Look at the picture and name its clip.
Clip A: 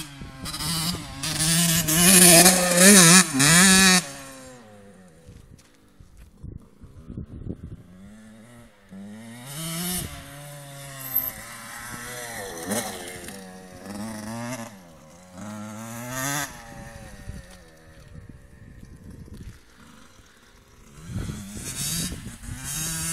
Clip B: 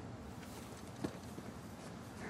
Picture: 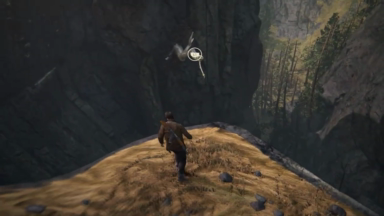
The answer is B